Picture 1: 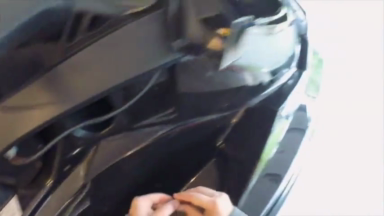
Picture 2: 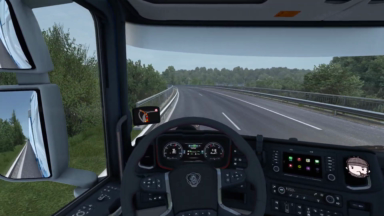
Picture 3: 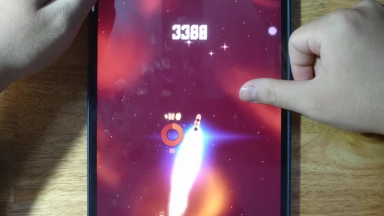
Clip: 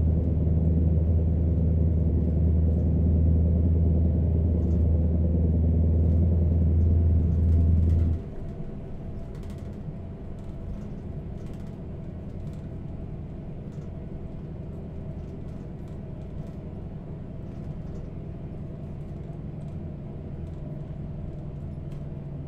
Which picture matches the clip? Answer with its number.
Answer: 2